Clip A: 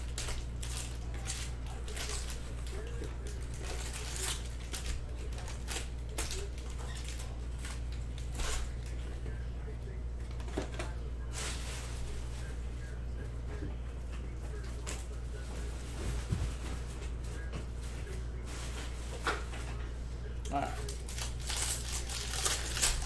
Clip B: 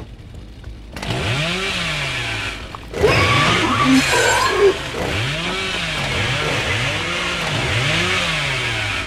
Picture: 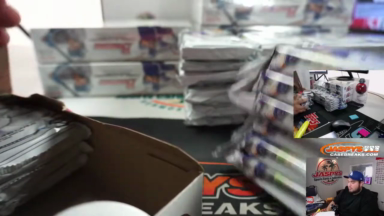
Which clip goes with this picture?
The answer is A